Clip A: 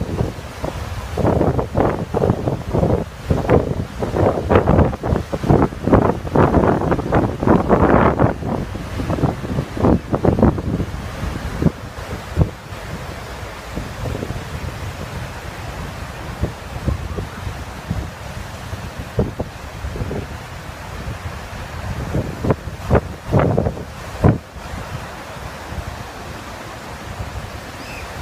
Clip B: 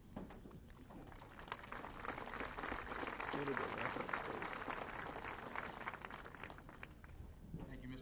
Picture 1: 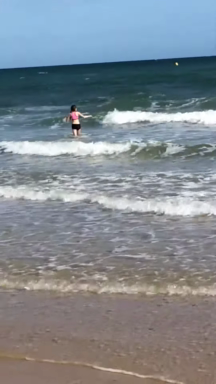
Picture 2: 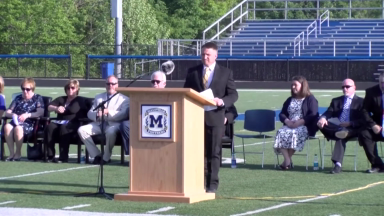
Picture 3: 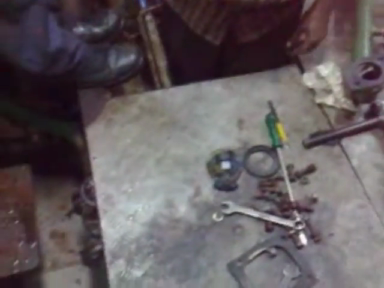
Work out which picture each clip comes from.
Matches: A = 1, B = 2